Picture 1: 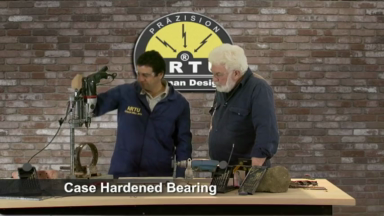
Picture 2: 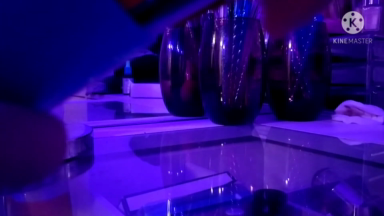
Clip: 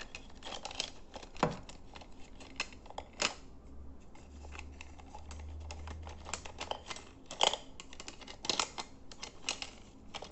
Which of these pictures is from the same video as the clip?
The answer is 2